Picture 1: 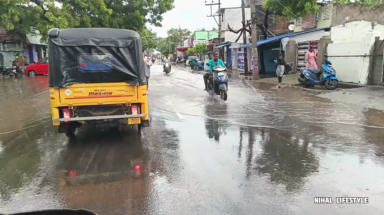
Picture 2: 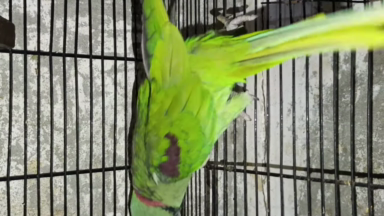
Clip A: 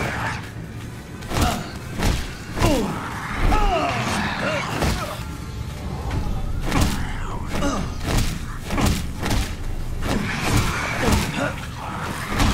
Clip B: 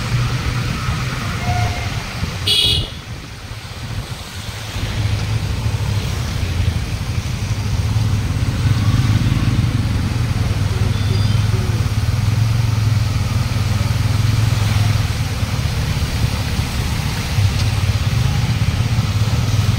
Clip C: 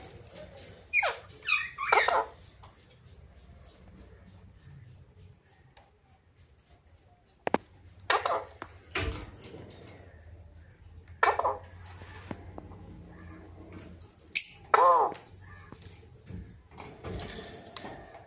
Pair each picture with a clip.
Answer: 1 B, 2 C